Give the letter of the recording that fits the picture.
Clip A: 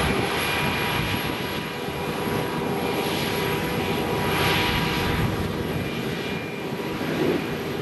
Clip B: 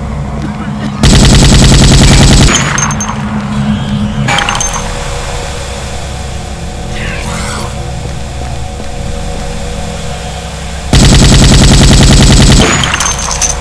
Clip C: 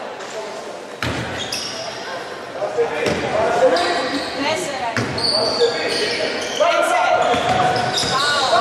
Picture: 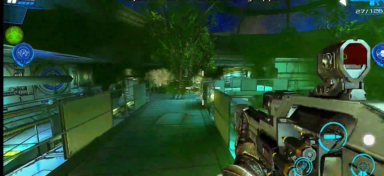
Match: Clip B